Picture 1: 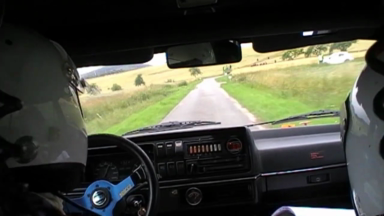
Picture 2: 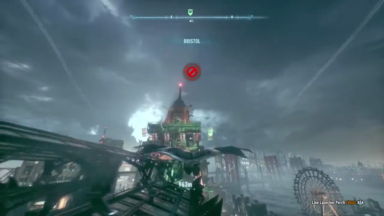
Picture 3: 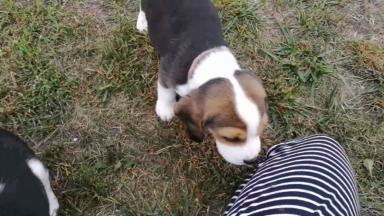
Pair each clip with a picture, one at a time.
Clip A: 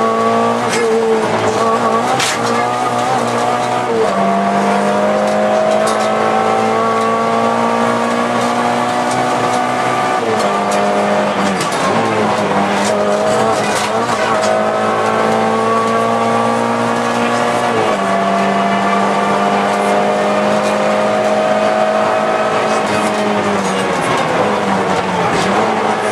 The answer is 1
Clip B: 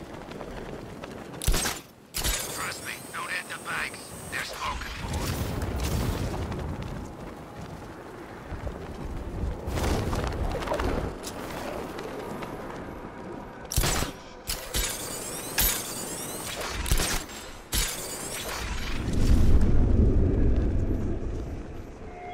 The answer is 2